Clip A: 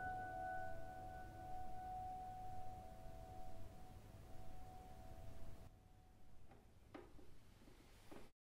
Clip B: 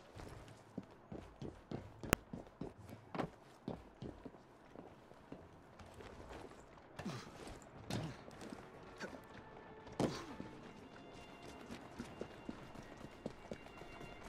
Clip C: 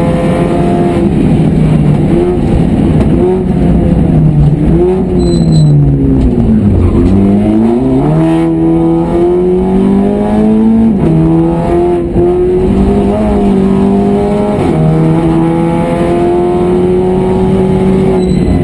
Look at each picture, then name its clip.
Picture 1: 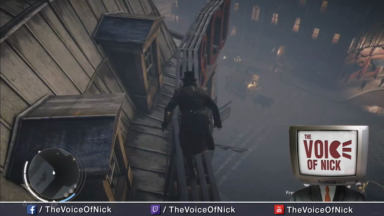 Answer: B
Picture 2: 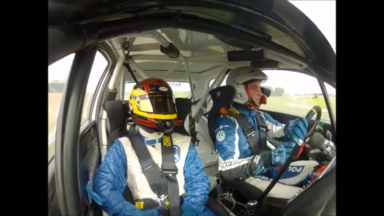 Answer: C